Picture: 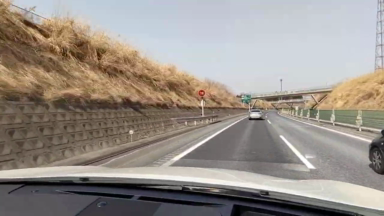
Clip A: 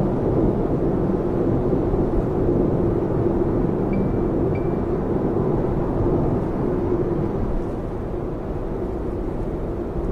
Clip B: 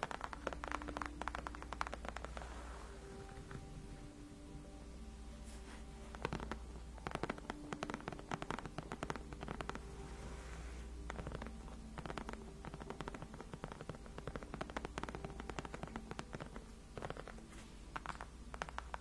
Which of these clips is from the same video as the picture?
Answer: A